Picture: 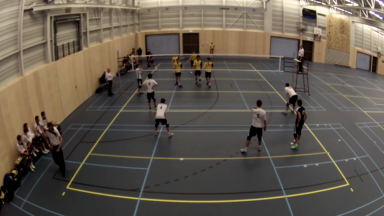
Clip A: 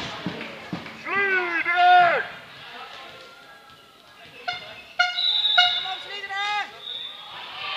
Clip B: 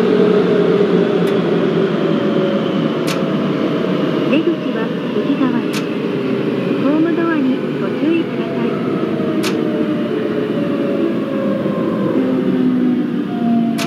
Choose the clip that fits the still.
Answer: A